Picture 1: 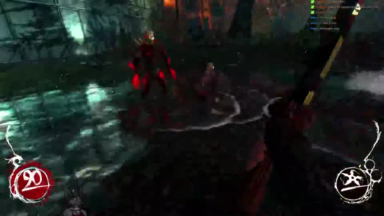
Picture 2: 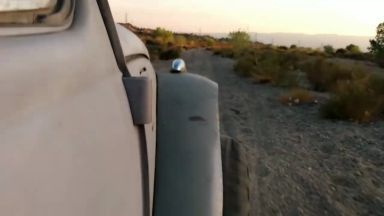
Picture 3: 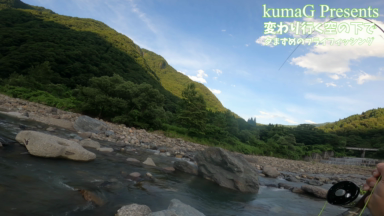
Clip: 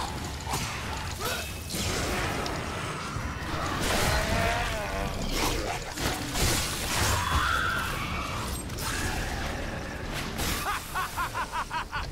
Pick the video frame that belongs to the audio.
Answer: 1